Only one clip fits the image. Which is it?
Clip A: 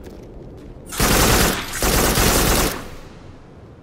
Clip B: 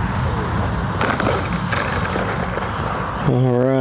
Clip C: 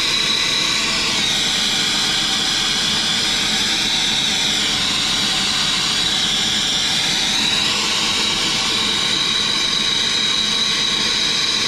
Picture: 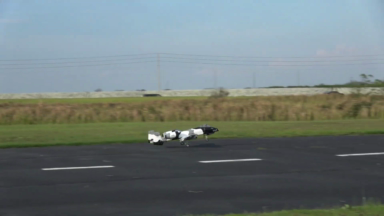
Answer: B